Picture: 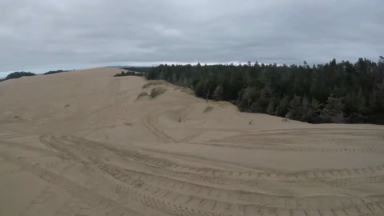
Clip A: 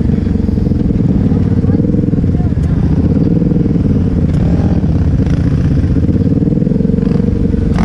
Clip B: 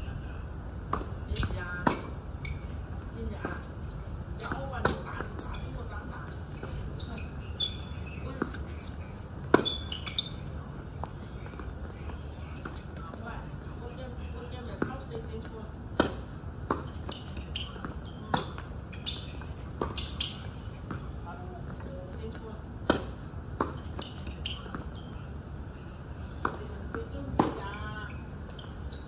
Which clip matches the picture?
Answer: A